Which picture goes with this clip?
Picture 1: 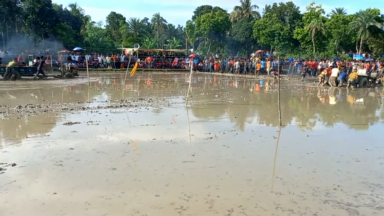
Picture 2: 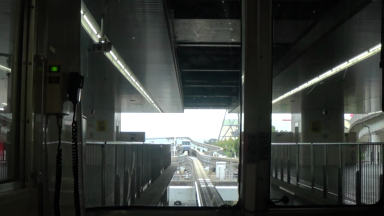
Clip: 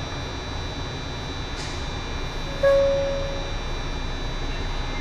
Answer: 2